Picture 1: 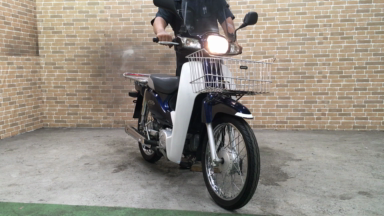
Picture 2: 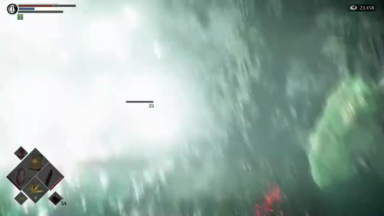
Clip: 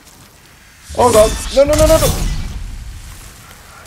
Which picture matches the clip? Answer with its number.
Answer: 2